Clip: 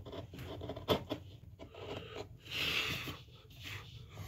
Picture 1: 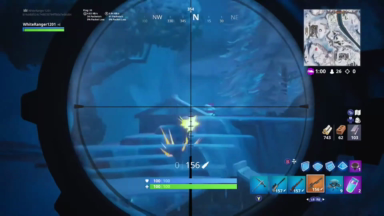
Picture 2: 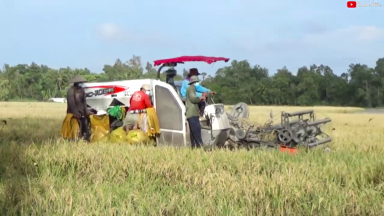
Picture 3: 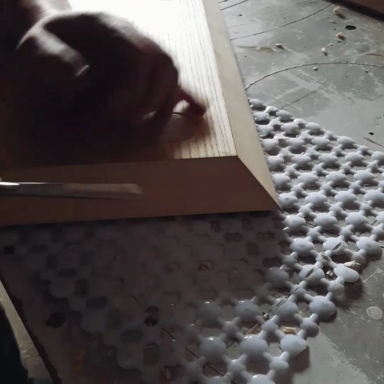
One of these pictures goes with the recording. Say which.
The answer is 3